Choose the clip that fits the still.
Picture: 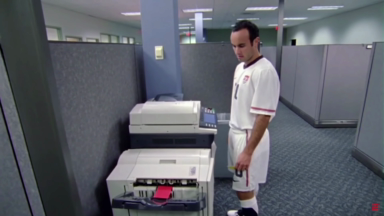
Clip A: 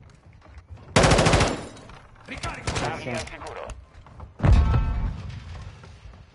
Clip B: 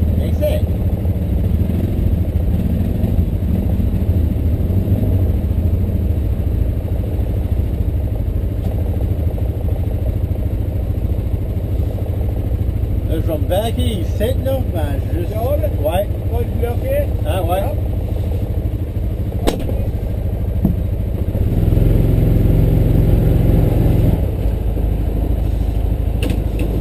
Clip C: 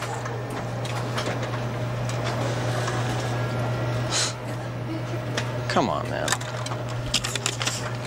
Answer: C